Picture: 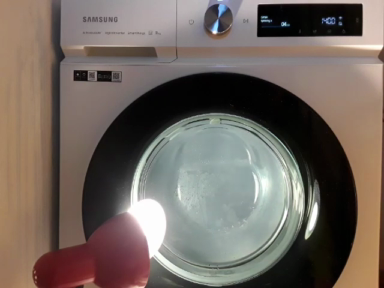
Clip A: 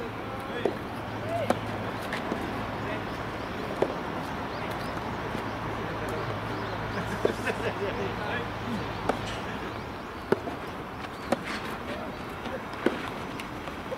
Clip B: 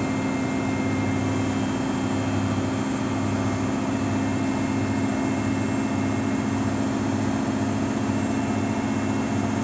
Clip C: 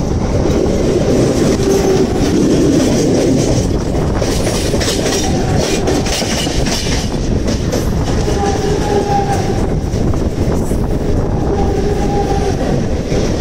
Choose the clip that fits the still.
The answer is B